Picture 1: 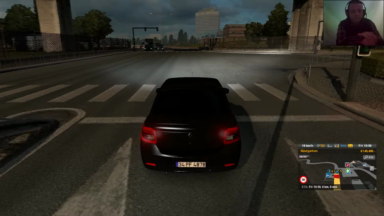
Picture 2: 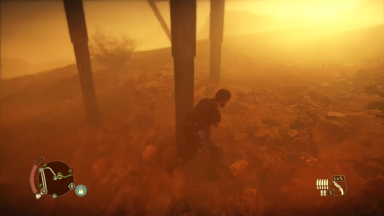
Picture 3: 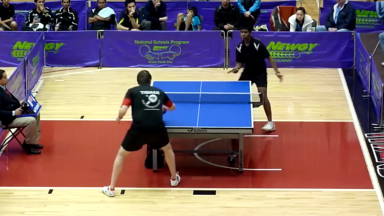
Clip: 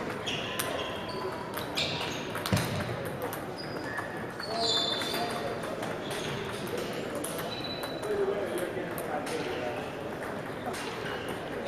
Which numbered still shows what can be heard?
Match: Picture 3